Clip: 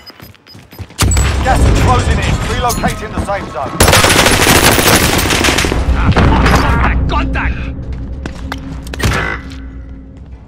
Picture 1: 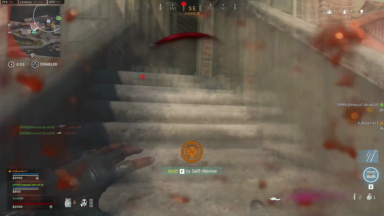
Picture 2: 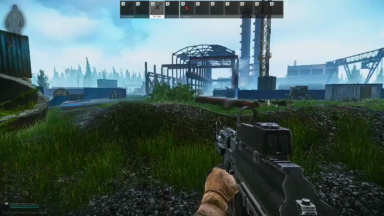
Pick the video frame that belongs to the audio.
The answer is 1